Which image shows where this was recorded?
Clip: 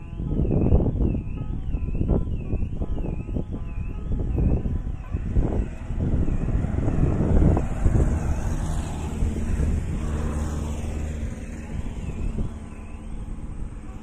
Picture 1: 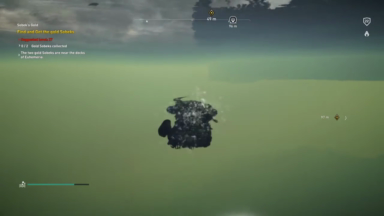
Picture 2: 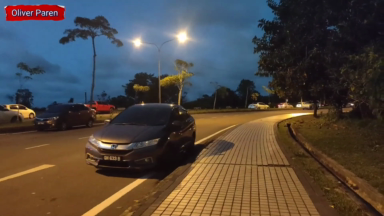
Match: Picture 2